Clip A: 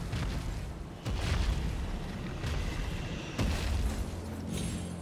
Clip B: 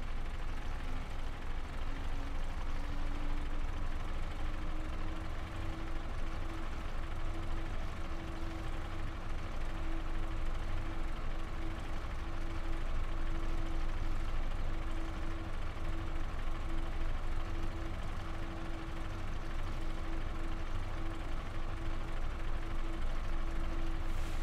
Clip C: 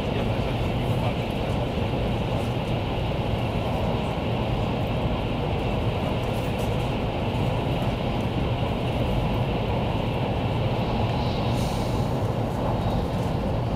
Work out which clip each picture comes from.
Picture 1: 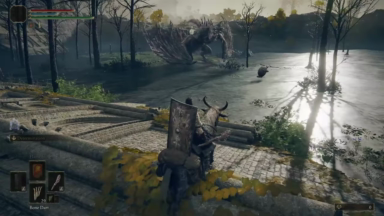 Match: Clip A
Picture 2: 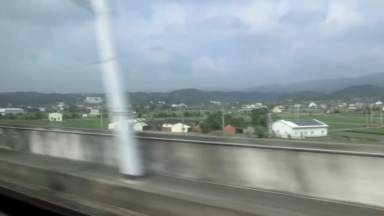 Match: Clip C